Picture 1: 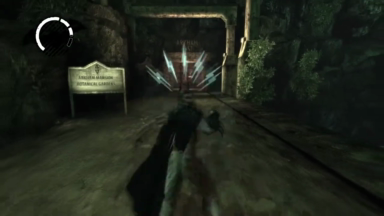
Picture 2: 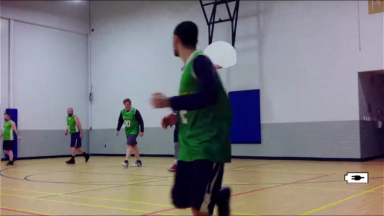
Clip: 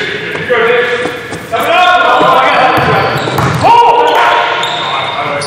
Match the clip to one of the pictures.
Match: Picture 2